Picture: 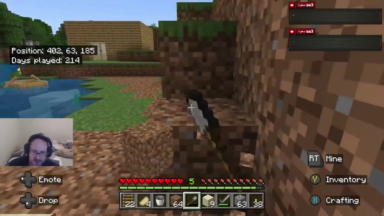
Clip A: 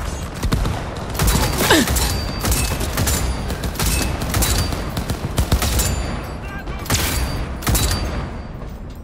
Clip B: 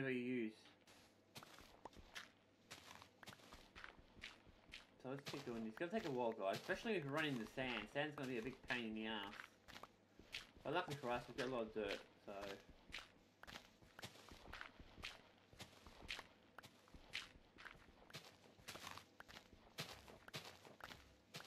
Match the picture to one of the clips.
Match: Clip B